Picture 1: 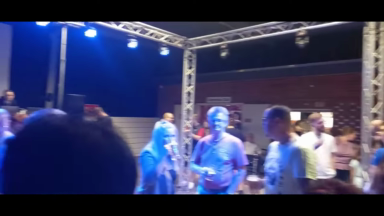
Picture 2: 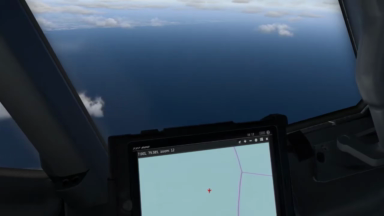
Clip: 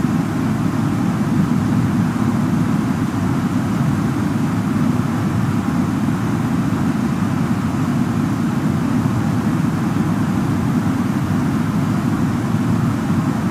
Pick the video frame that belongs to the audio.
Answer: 2